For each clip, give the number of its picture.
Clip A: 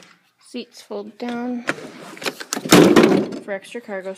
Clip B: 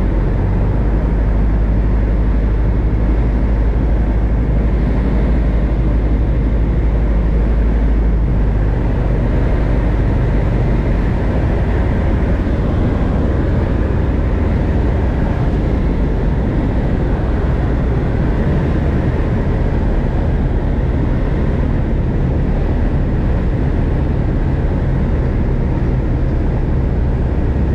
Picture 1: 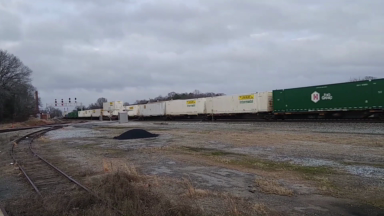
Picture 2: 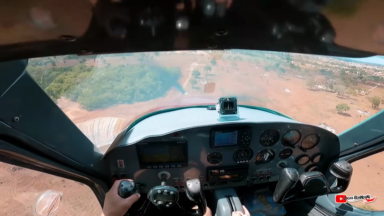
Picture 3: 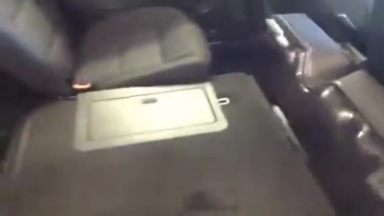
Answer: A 3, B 2